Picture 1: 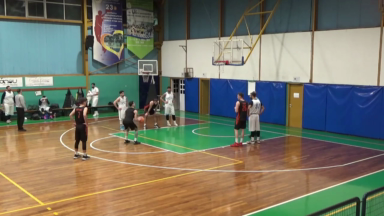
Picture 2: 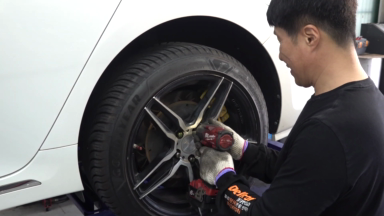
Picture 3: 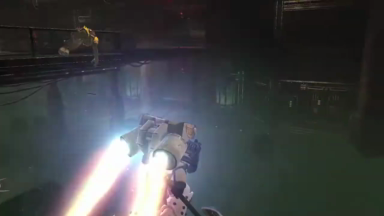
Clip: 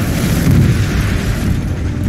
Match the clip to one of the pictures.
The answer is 3